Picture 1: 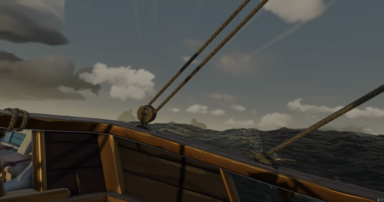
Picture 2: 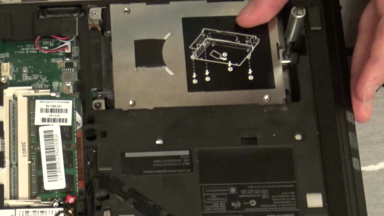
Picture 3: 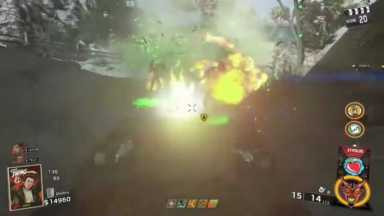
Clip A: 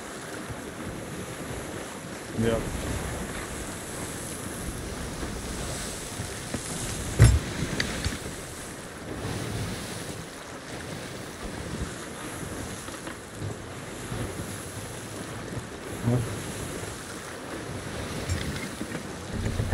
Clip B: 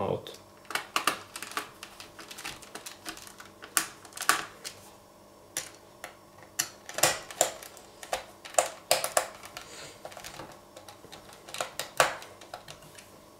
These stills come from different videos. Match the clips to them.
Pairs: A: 1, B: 2